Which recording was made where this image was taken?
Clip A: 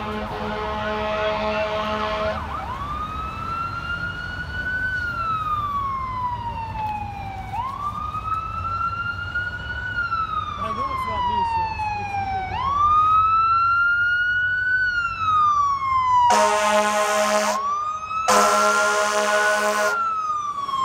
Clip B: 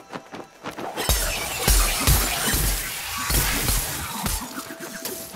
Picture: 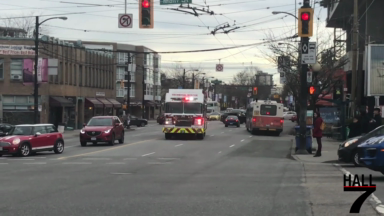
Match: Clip A